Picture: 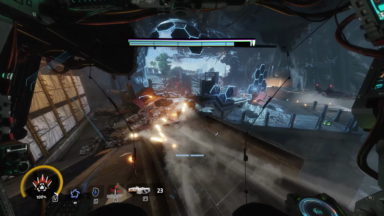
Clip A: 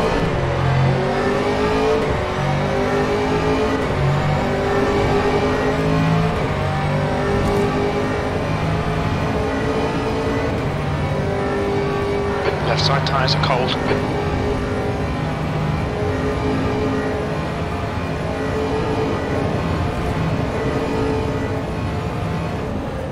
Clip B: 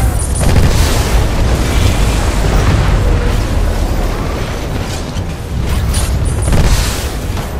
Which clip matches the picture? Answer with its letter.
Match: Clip B